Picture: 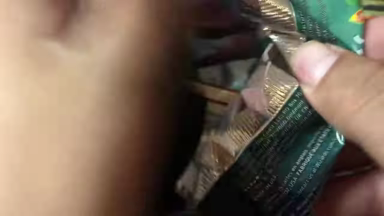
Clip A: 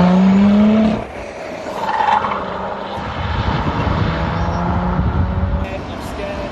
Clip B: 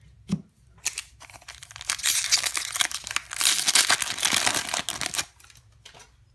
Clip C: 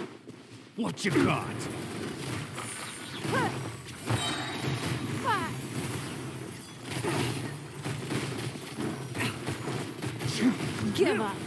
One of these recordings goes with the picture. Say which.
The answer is B